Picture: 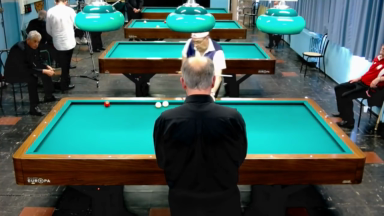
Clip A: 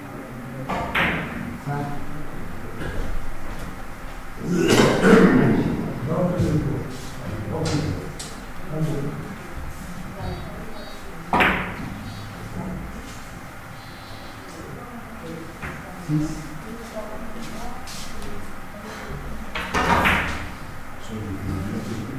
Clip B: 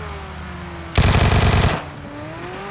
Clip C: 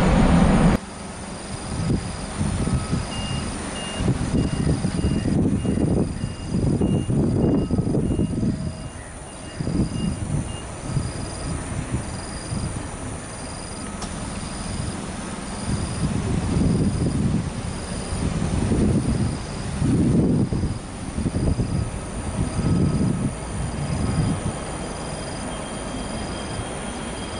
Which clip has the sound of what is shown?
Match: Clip A